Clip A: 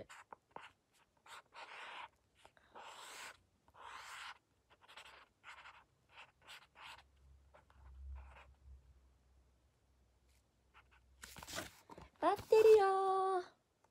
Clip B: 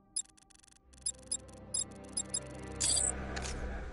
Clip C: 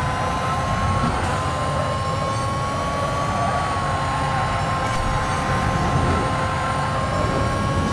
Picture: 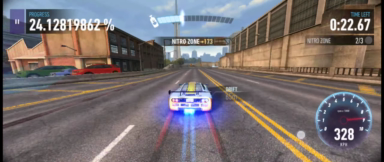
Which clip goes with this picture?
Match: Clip C